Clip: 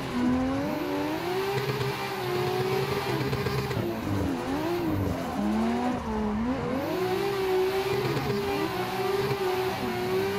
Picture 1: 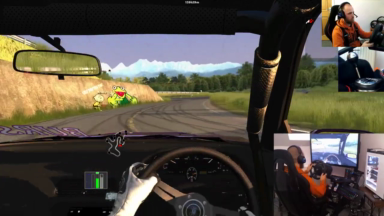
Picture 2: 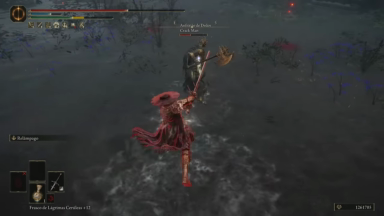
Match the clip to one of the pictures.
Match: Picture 1